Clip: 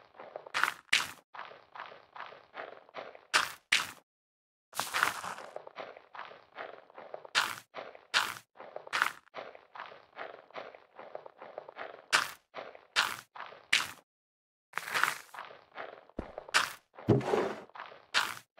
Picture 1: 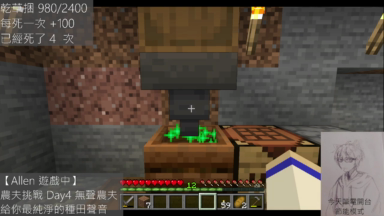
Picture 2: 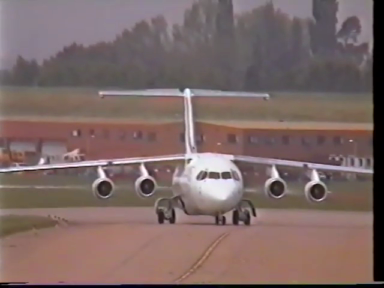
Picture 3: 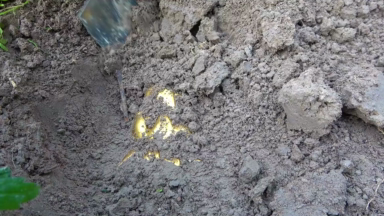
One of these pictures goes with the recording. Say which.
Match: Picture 1